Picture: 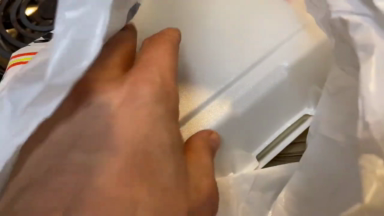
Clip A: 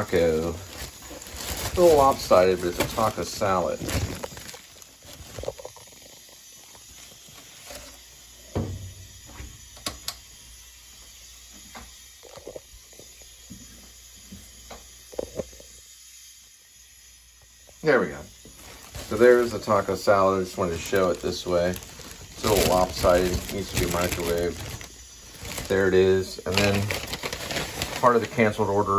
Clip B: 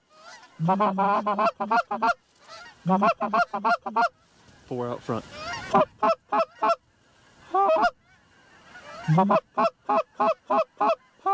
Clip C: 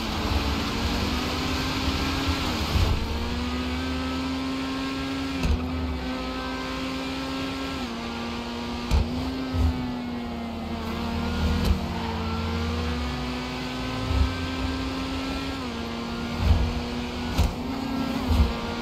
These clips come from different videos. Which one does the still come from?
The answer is A